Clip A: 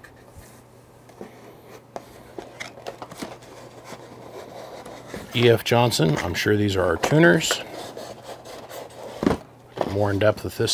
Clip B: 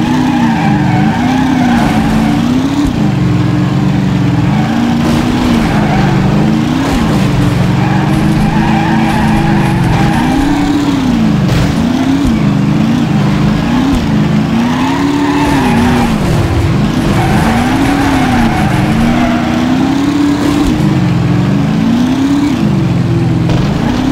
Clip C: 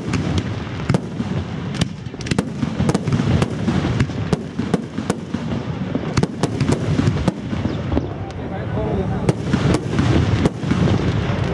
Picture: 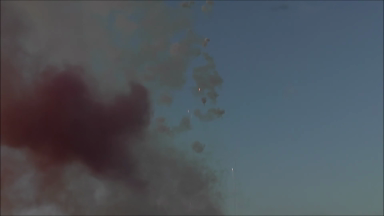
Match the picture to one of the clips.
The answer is C